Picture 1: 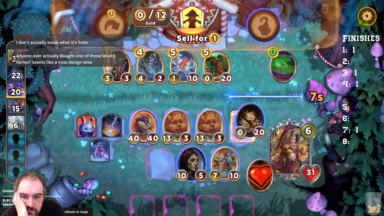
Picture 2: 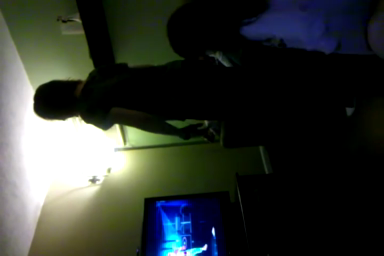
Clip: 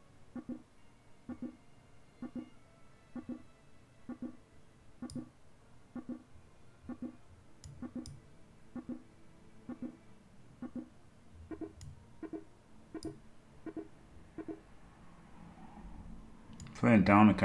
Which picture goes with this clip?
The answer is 1